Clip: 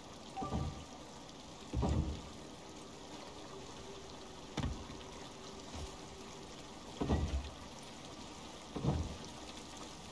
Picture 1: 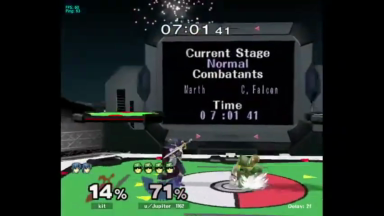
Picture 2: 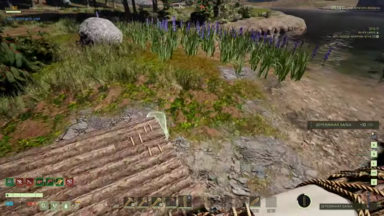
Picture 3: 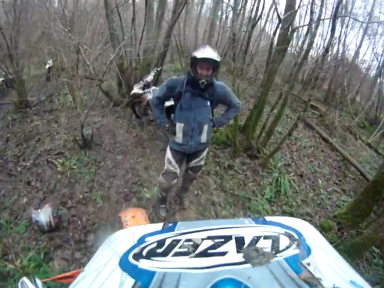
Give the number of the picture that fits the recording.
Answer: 2